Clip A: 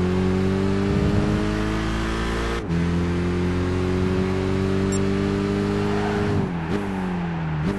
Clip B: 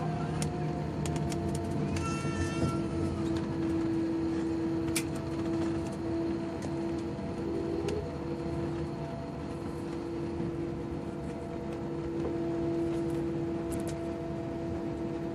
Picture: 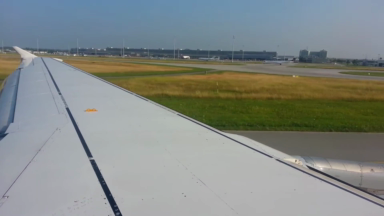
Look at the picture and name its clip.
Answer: B